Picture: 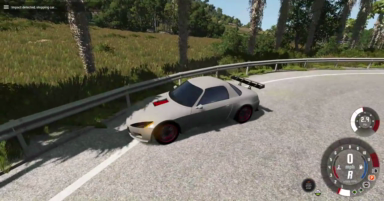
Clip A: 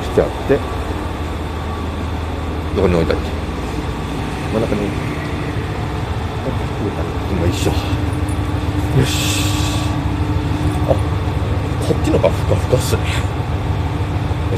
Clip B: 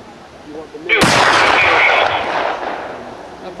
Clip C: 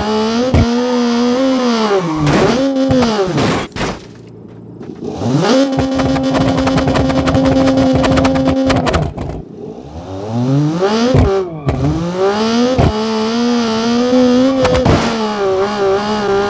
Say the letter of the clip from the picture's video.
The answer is C